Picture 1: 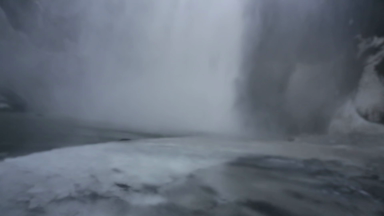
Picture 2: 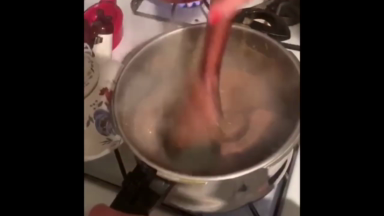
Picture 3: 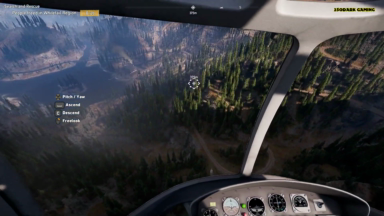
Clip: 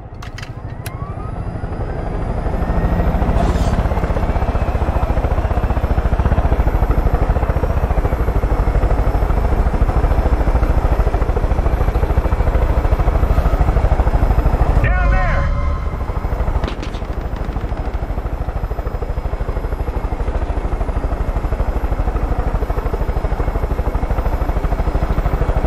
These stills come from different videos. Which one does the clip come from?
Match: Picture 3